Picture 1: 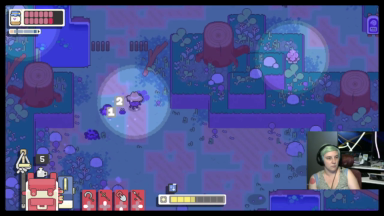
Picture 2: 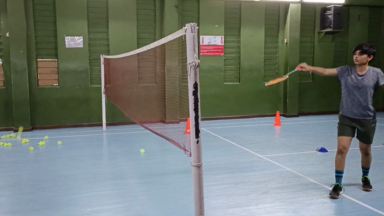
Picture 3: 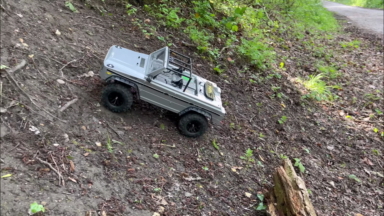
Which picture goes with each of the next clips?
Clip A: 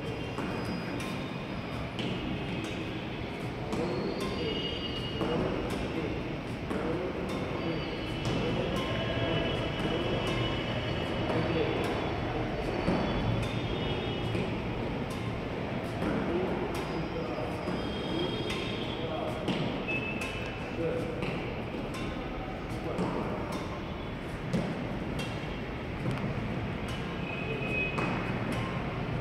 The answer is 2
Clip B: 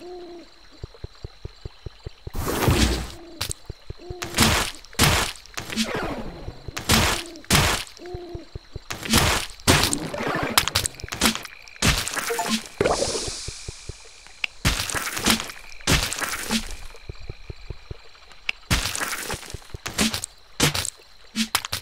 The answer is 1